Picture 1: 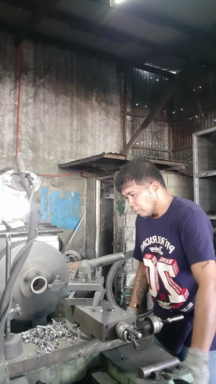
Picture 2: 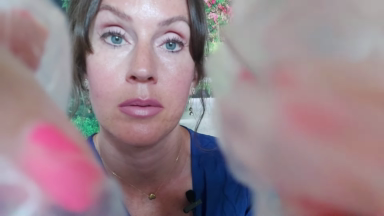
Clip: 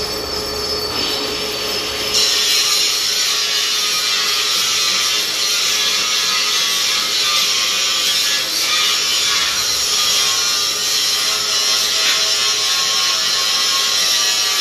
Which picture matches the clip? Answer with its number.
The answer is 1